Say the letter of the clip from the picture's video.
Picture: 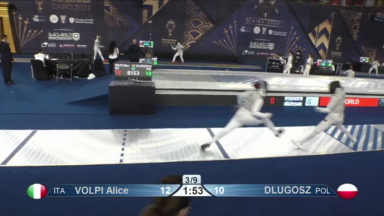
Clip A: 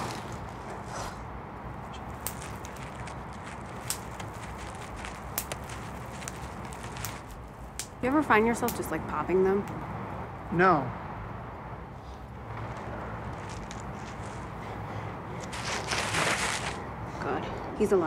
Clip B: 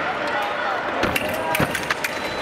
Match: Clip B